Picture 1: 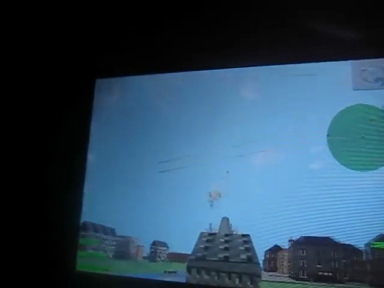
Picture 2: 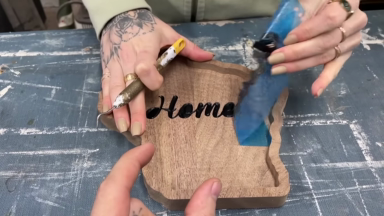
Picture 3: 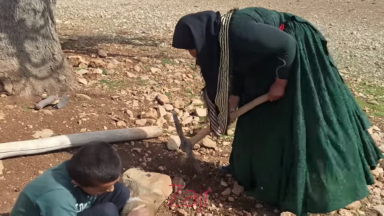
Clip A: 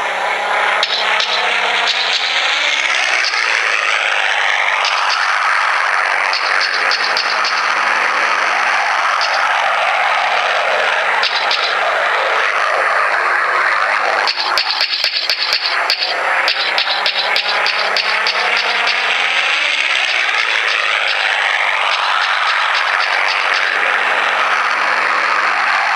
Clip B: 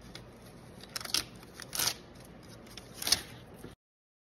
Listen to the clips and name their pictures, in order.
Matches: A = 1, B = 2